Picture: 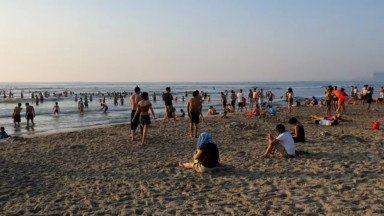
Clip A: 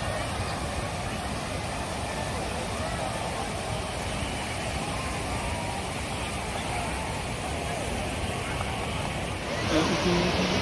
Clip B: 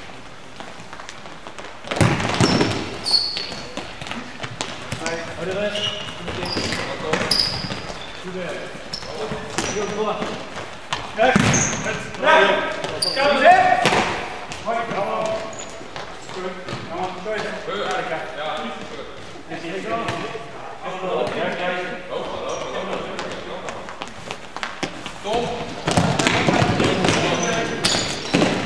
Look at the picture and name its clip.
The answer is A